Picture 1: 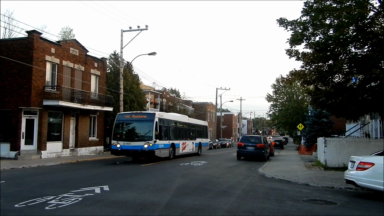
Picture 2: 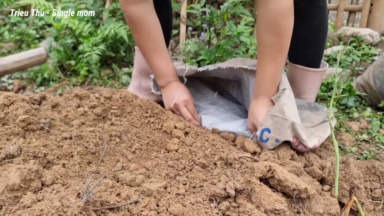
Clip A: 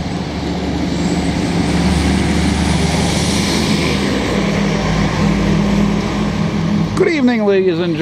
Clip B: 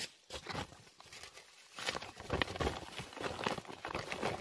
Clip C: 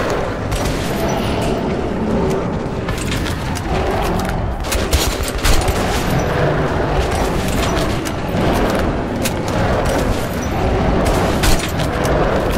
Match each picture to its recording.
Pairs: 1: A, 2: B